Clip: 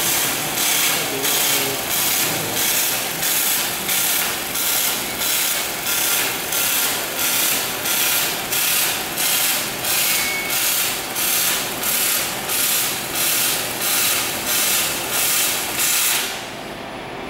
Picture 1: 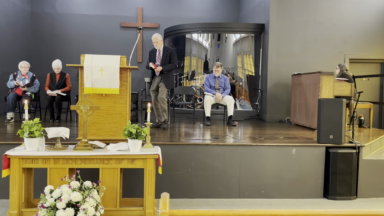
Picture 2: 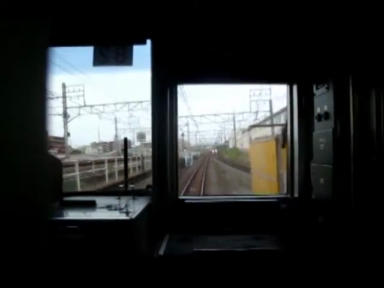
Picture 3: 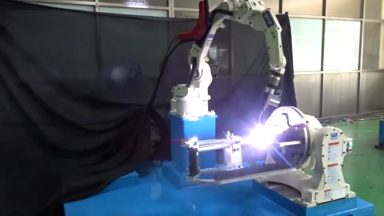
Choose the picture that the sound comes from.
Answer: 3